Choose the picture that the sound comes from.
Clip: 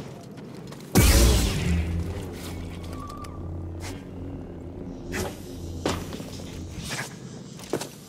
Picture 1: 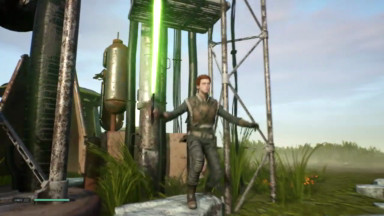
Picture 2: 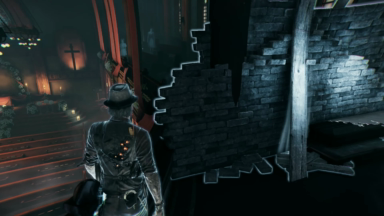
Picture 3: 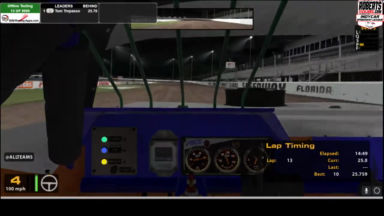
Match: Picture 1